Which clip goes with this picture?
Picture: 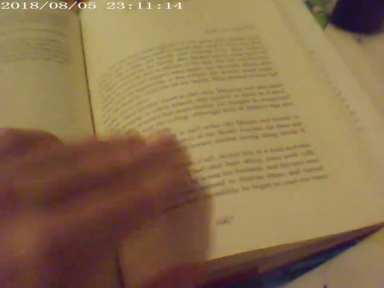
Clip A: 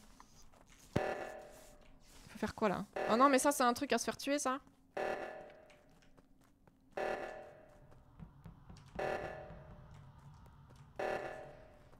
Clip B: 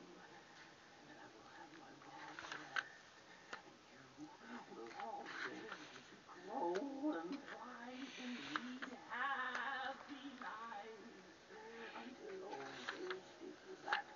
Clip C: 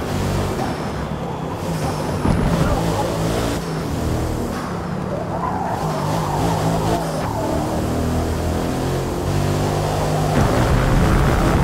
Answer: B